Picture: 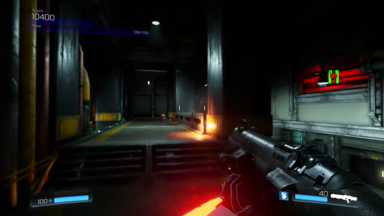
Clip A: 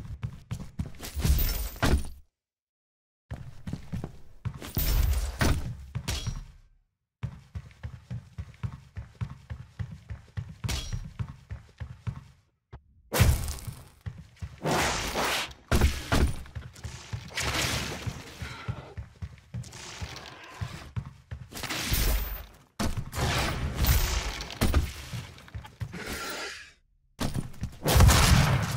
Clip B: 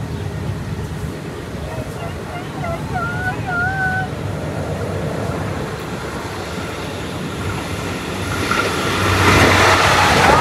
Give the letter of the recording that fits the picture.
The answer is A